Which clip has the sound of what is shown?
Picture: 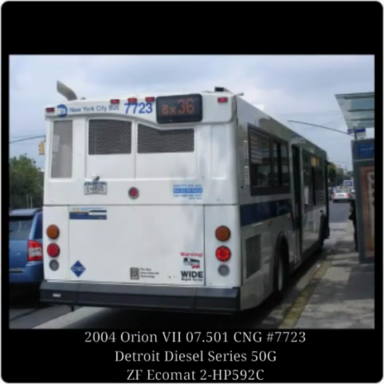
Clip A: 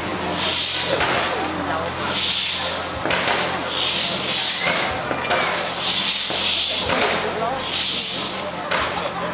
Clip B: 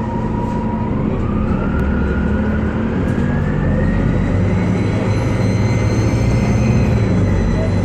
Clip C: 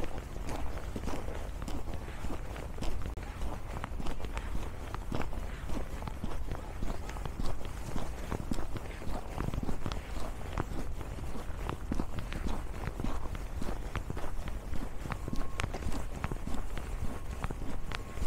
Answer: B